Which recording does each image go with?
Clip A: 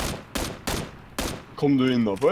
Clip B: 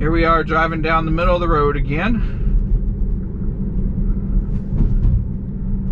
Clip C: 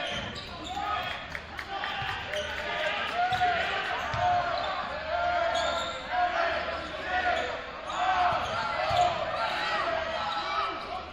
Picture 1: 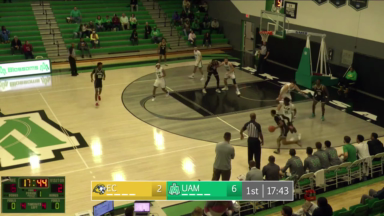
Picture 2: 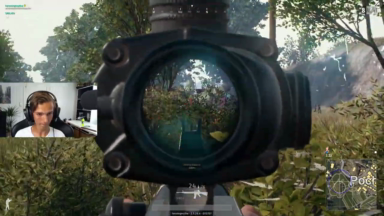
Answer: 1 C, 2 A